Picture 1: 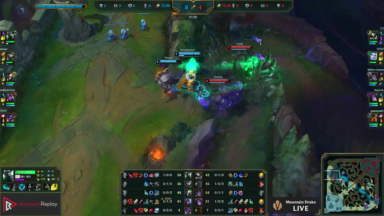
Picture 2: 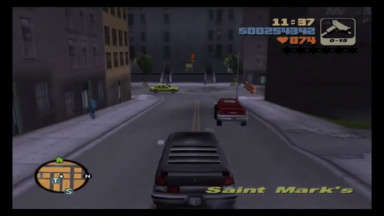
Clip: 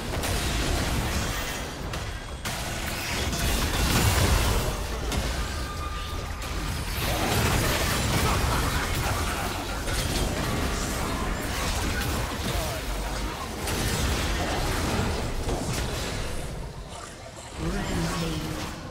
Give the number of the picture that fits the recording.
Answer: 1